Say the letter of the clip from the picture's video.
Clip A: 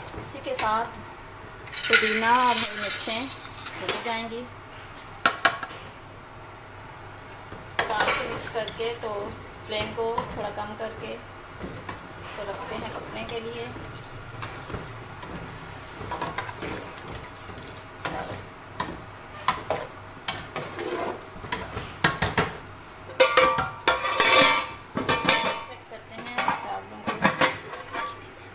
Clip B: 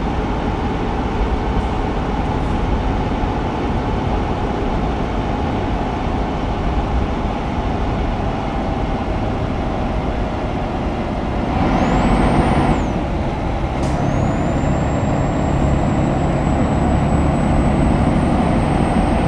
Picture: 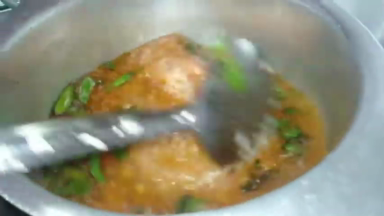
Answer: A